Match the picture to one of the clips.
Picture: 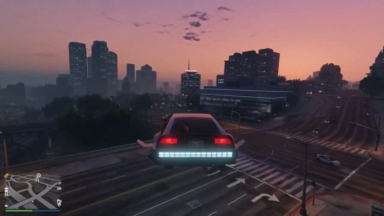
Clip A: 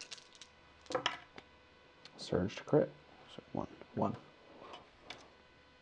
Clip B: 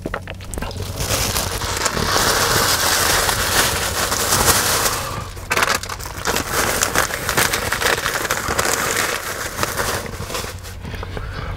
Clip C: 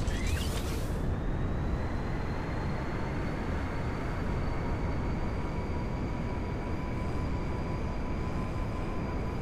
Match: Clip C